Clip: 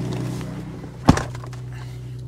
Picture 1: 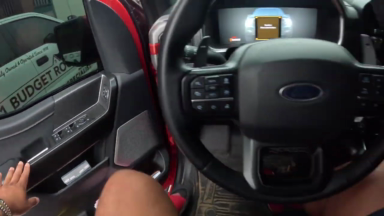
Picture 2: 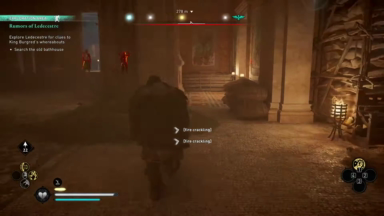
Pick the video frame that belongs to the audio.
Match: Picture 1